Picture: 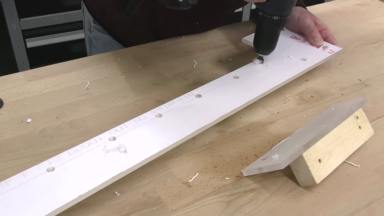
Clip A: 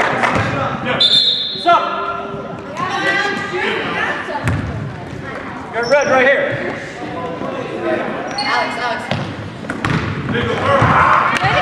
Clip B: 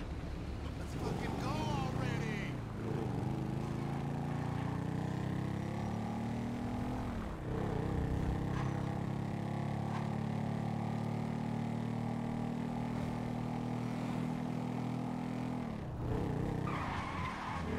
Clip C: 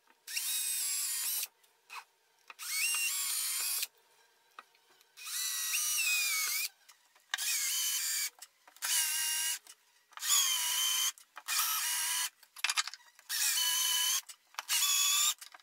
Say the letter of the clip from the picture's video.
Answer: C